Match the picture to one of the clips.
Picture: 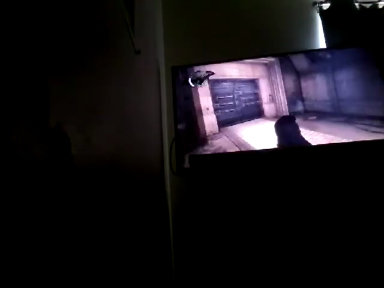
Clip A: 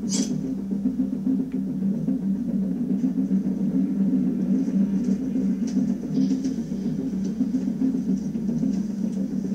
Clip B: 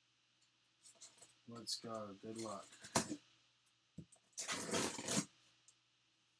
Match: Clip A